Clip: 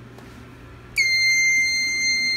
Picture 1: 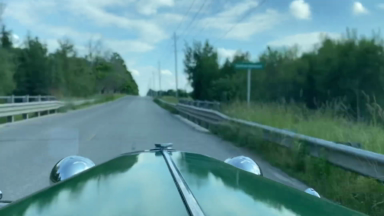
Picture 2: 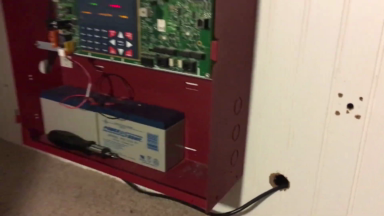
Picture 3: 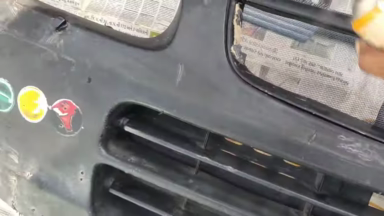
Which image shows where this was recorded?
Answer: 2